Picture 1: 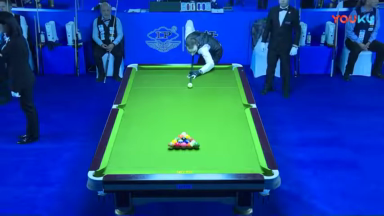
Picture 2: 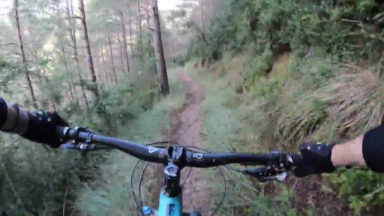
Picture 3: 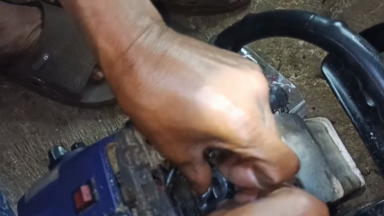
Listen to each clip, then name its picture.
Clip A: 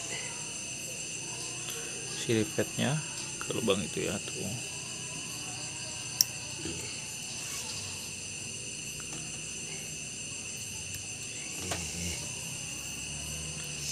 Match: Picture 3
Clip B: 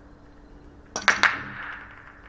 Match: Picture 1